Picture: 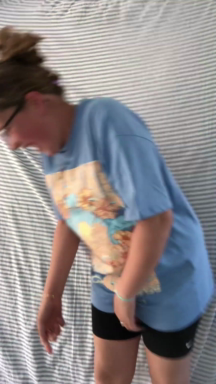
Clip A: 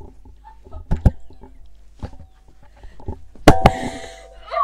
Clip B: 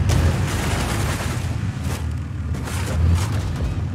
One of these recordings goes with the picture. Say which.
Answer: A